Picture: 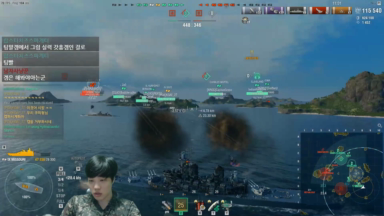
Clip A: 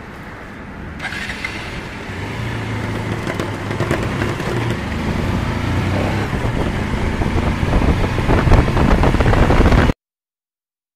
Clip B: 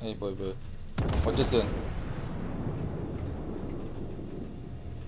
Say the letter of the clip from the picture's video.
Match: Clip B